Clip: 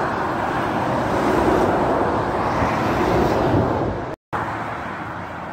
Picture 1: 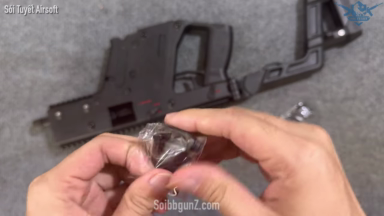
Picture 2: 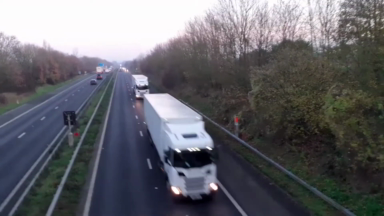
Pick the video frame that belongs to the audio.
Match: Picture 2